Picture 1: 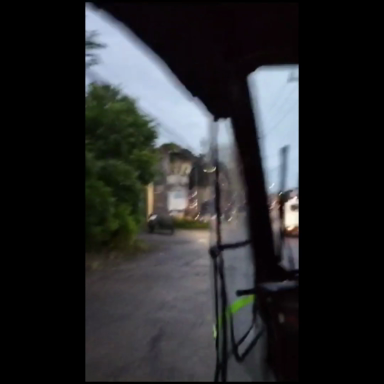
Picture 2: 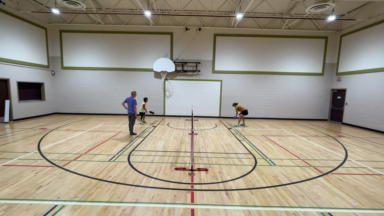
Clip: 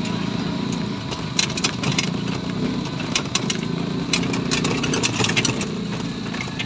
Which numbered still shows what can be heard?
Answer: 1